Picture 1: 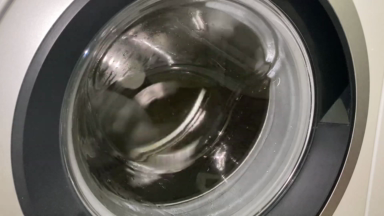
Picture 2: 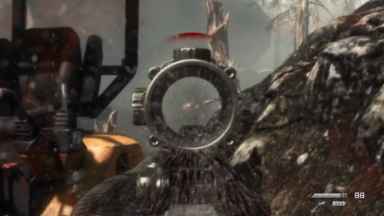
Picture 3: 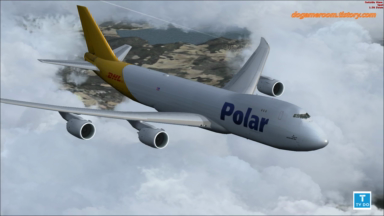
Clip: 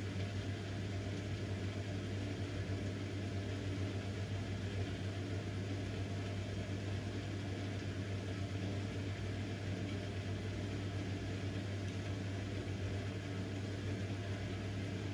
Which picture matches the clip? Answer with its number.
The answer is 1